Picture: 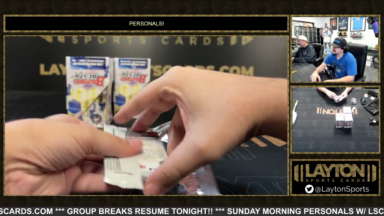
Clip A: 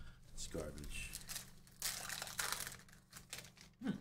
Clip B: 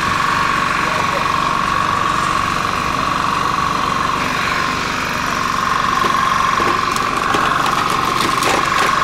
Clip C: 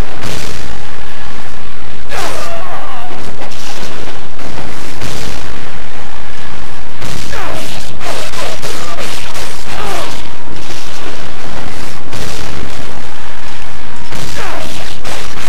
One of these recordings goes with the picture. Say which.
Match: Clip A